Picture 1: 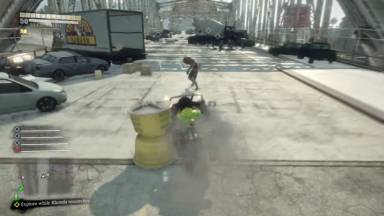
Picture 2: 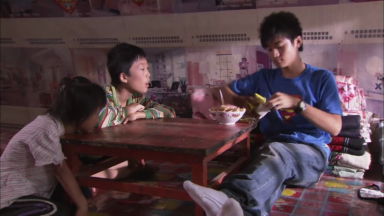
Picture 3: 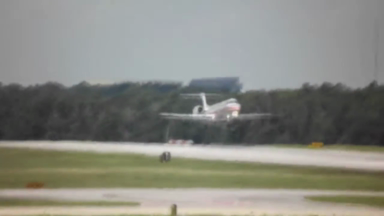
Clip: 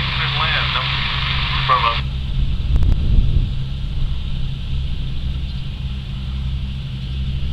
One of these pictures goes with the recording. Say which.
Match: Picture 3